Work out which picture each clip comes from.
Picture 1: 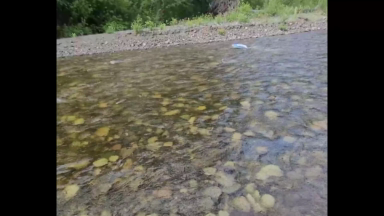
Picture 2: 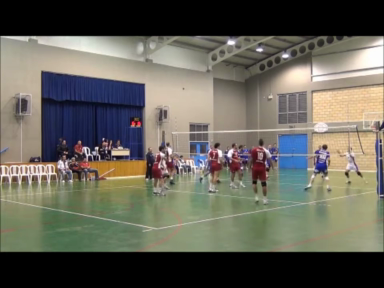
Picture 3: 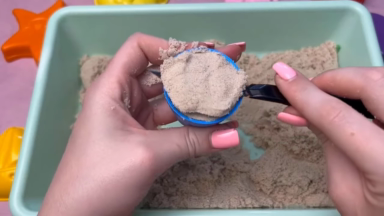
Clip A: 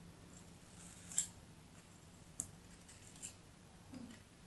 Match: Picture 3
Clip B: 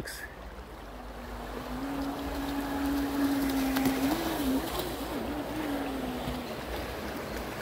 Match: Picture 1